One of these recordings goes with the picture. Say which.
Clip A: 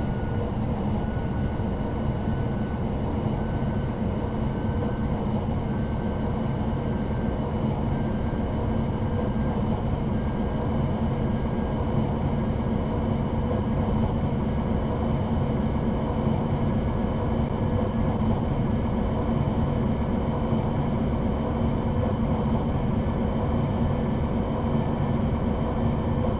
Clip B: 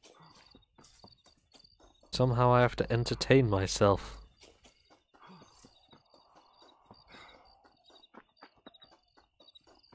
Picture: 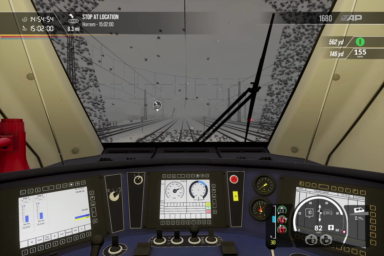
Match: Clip A